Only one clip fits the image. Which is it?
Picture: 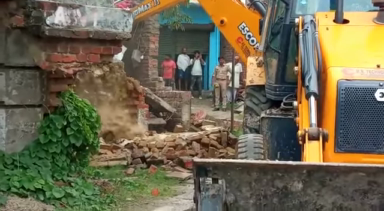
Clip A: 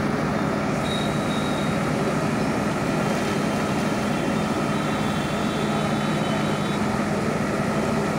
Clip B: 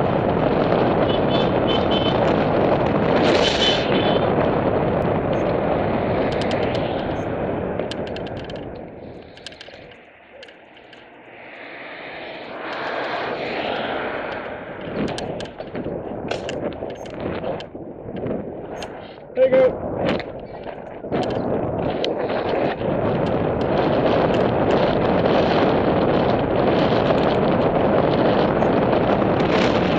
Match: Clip A